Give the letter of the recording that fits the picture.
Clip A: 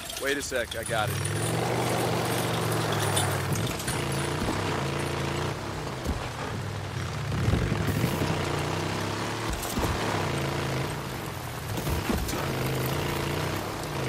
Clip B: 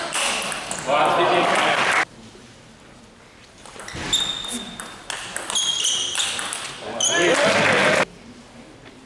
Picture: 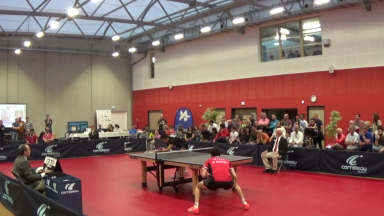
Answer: B